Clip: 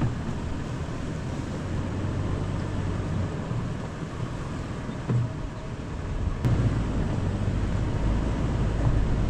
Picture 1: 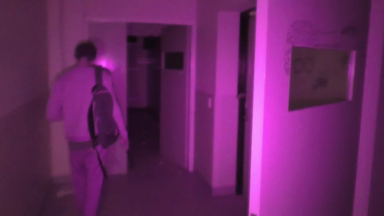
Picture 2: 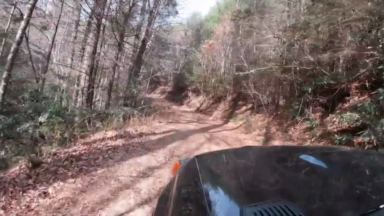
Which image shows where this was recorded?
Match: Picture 2